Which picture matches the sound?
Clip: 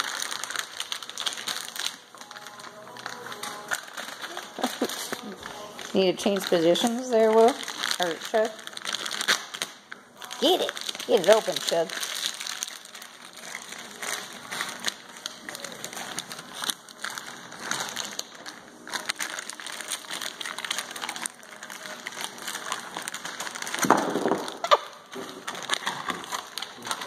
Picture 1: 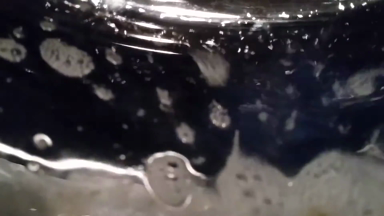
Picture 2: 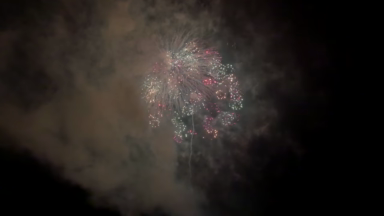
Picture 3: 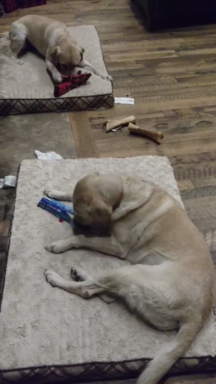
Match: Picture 3